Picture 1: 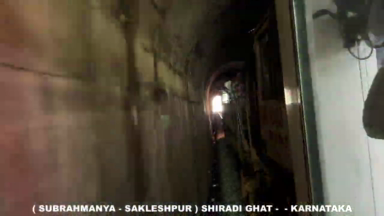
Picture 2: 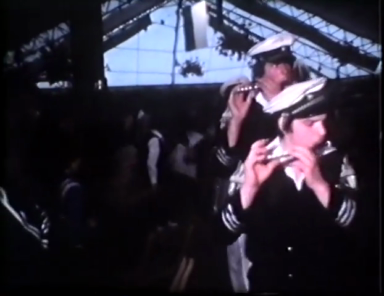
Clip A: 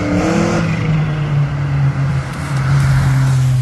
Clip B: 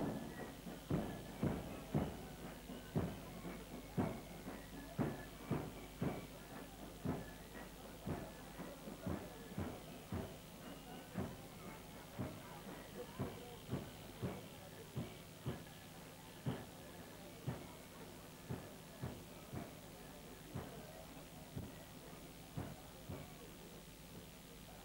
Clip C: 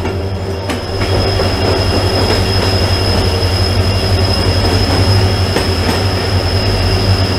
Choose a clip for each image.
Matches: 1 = C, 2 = B